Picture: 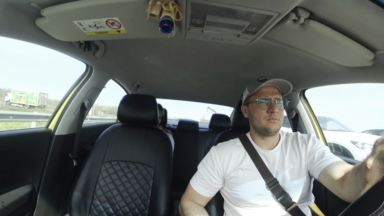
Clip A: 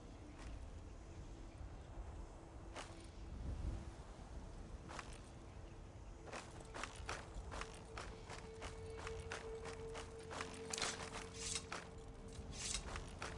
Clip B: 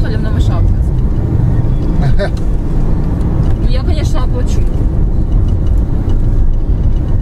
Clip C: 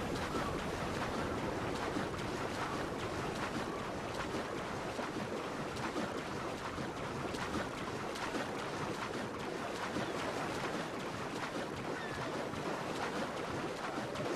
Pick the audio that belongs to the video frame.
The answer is B